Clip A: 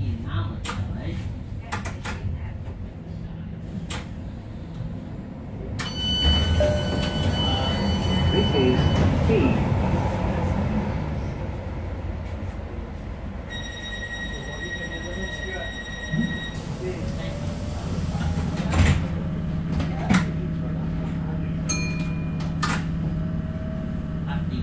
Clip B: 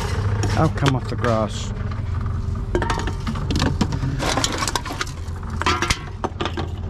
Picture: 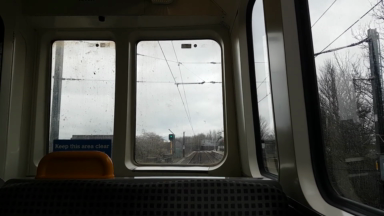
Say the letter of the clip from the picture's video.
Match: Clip A